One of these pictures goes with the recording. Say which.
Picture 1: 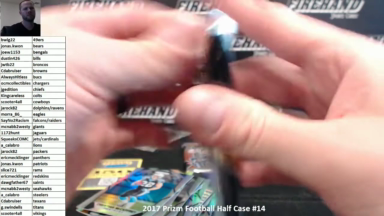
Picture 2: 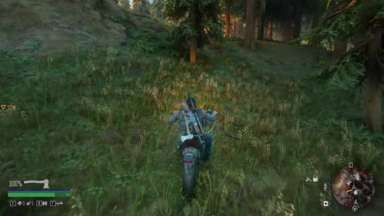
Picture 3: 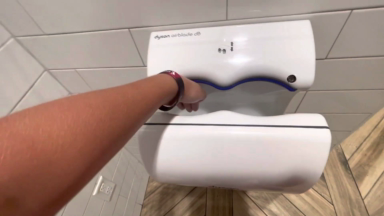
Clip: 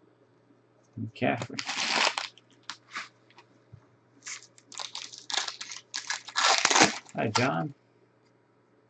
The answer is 1